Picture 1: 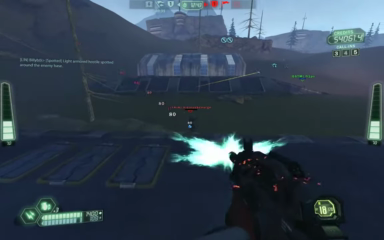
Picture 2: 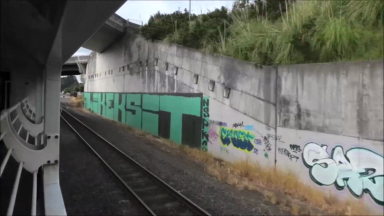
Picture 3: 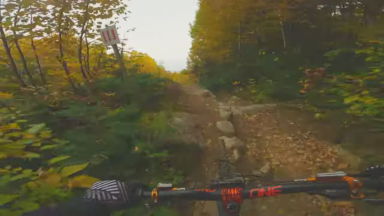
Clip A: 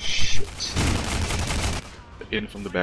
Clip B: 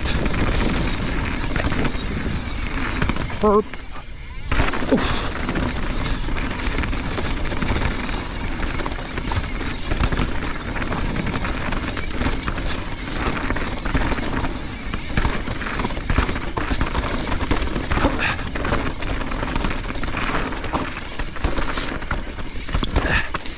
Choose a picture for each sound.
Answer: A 1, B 3